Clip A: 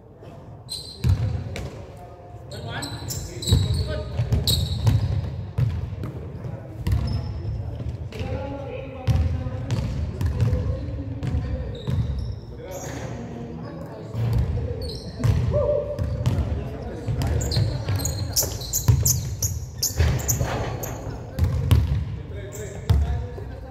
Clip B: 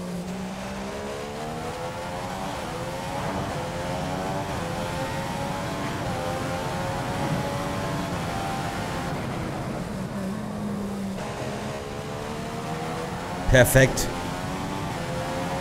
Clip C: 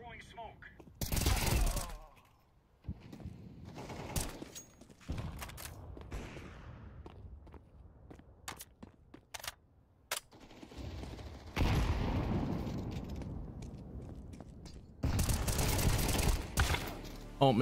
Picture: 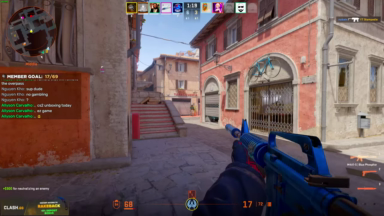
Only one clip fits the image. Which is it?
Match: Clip C